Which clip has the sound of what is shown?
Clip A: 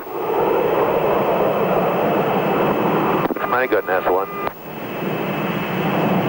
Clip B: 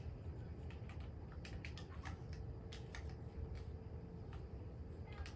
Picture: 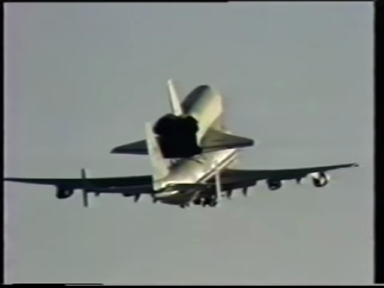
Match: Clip A